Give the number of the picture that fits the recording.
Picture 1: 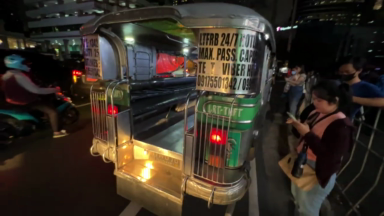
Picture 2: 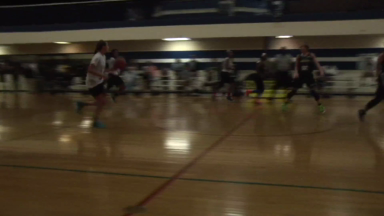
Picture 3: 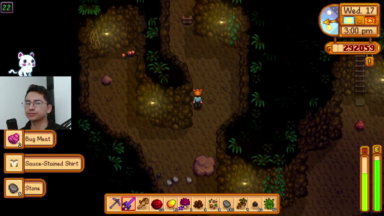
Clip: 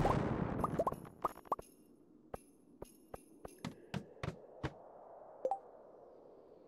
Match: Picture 3